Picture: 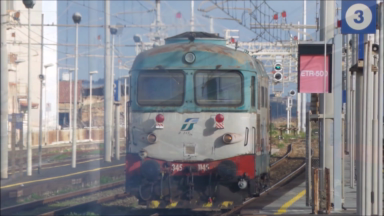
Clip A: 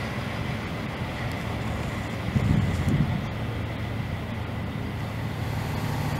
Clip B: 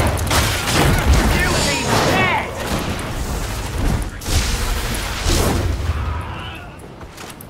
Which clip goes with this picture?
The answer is A